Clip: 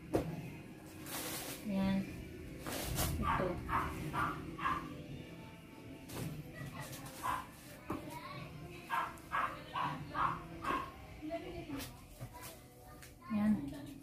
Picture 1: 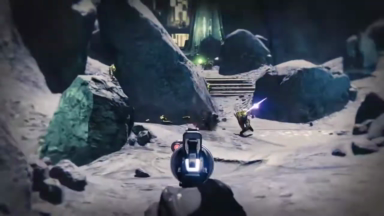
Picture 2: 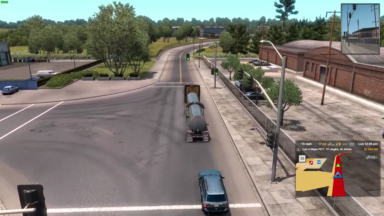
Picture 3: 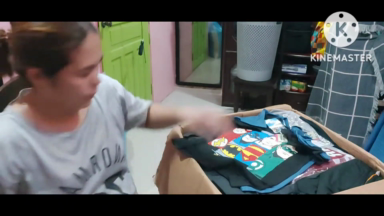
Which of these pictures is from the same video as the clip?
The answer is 3